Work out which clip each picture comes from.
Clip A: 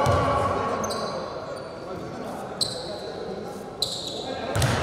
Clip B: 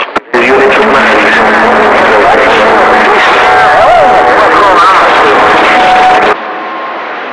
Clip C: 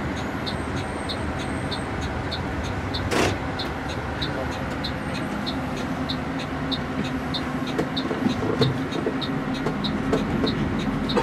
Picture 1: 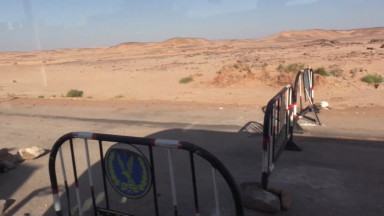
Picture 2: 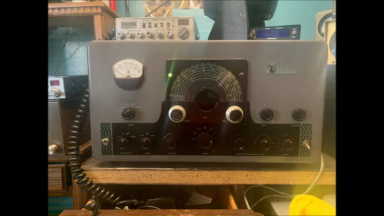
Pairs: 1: C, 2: B